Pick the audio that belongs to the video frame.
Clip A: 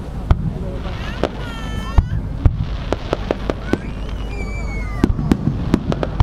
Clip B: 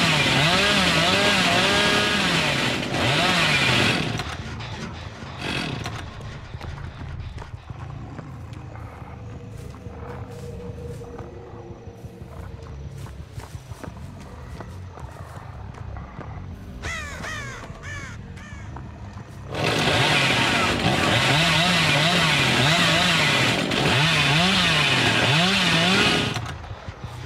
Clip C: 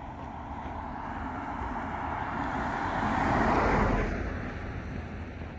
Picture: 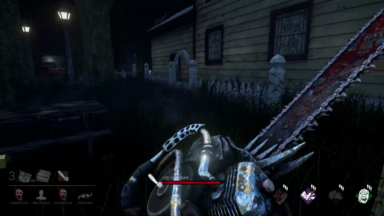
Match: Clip B